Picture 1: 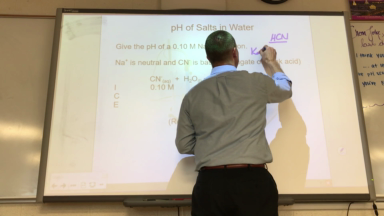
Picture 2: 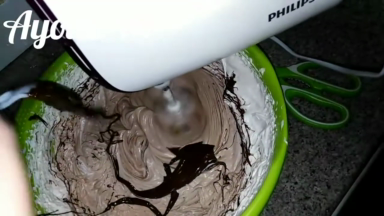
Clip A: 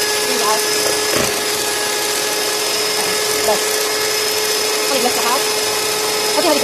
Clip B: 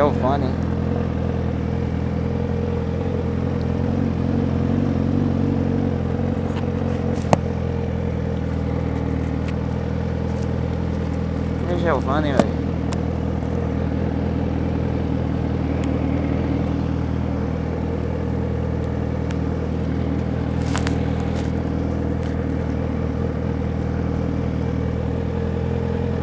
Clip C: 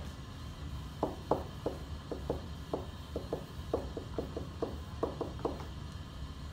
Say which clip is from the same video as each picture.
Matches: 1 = C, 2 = A